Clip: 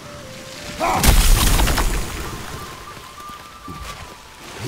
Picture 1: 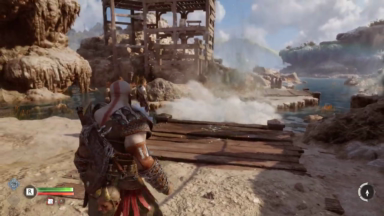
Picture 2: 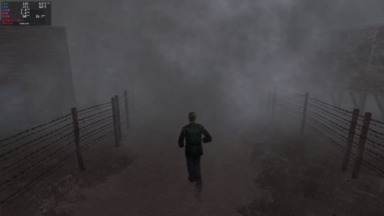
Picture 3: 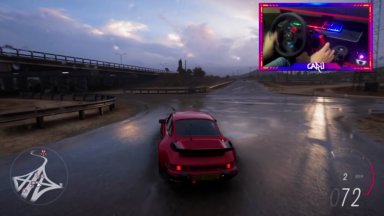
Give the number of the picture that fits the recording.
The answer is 1